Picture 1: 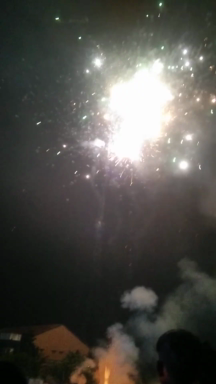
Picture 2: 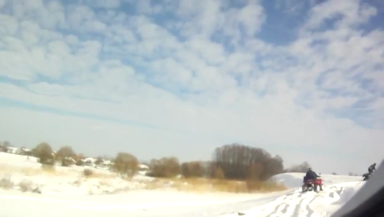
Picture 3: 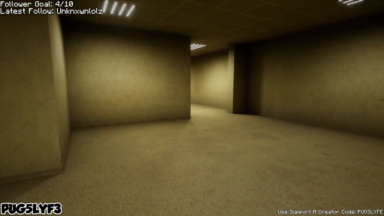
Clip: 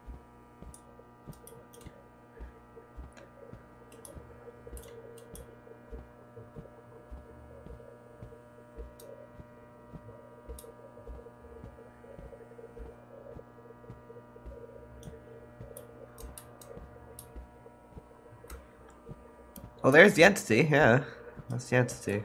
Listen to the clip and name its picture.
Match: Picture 3